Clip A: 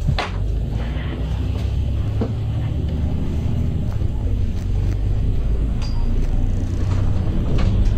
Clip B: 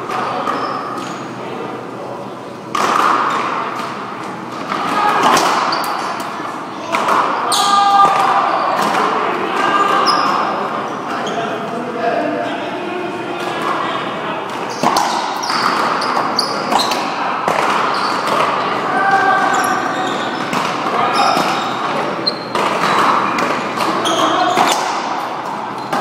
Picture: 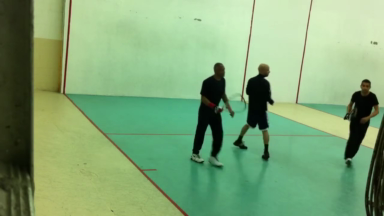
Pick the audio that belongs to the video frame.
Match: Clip B